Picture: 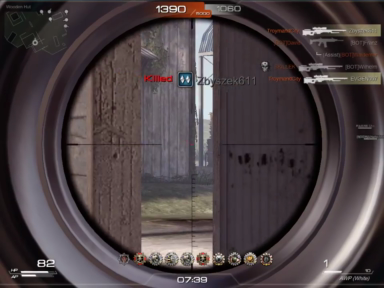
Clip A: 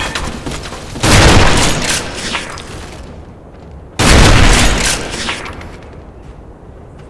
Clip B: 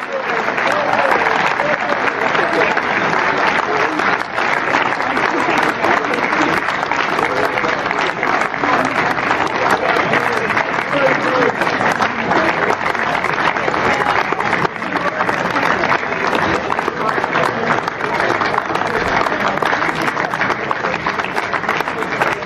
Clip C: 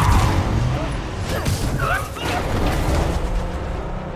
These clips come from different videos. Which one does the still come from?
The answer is A